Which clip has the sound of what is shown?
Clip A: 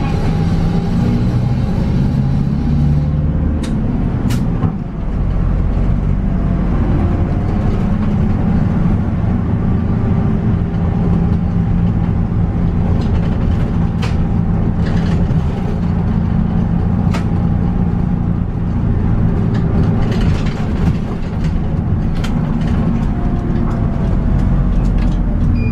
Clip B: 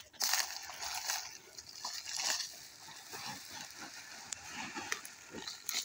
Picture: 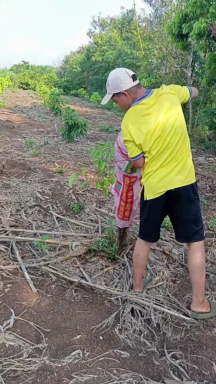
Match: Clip B